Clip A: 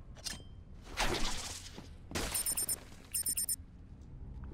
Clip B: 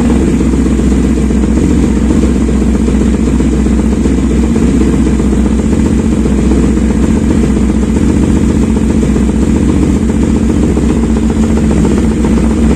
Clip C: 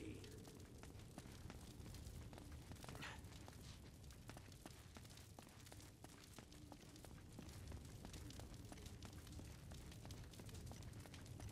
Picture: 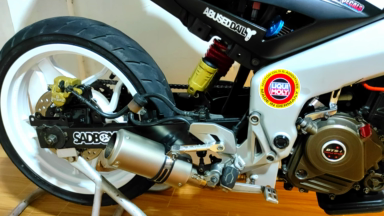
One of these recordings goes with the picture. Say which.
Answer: B